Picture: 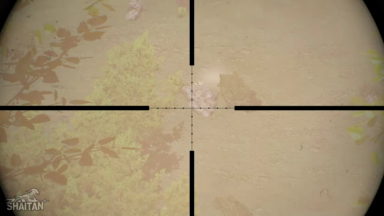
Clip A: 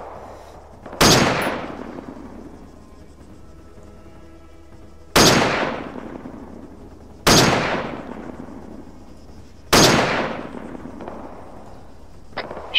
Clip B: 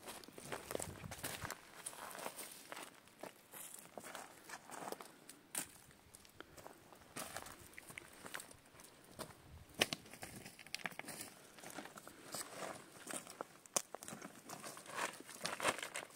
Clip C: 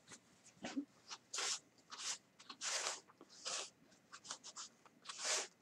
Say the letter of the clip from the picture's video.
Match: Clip A